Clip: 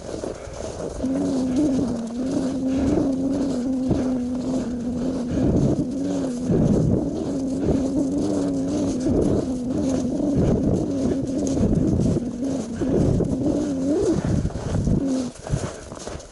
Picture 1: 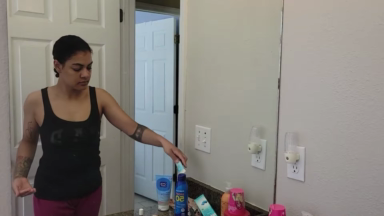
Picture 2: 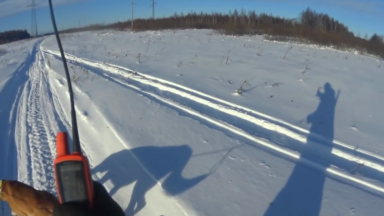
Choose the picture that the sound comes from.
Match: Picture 2